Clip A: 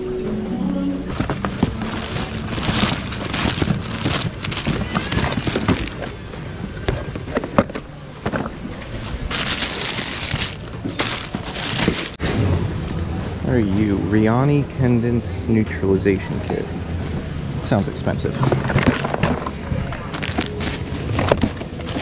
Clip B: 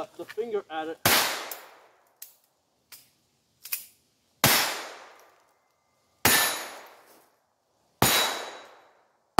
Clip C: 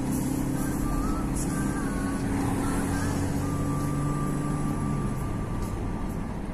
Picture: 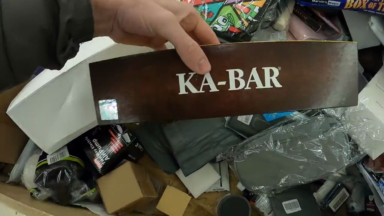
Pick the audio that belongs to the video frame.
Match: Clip A